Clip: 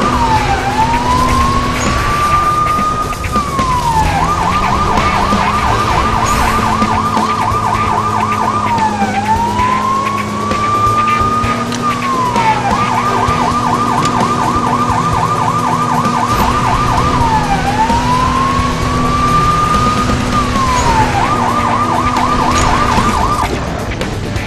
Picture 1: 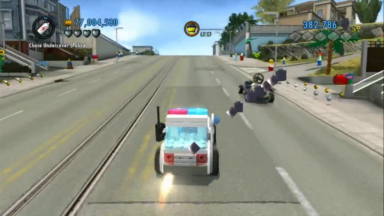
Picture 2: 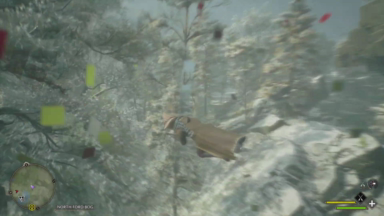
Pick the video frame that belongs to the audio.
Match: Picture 1